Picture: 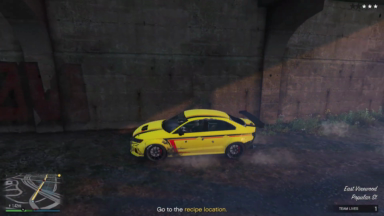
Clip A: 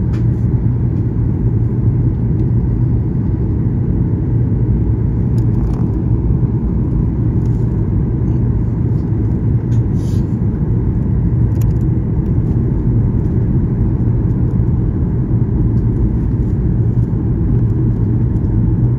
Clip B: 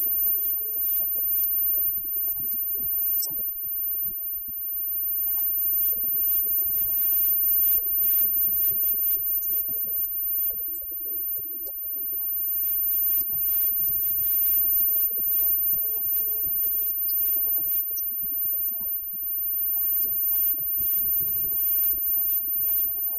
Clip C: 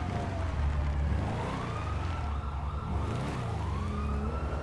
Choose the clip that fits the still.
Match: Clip C